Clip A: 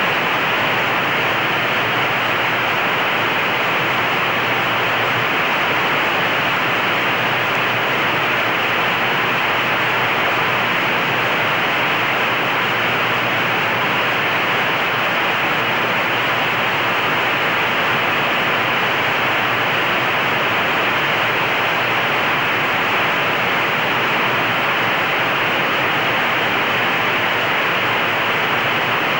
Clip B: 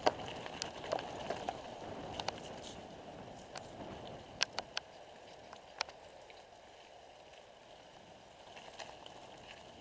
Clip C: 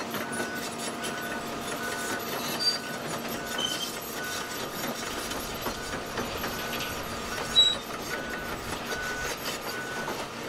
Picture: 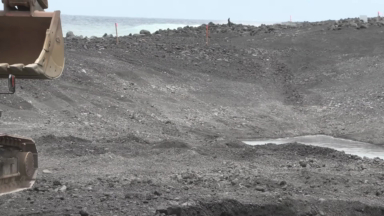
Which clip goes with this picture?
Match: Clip C